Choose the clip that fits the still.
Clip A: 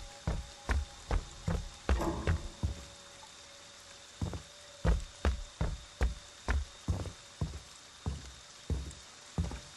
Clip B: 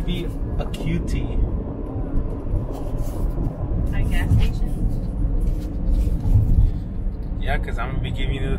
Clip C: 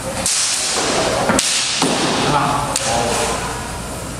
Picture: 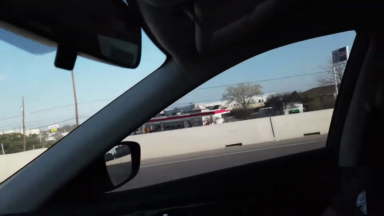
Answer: B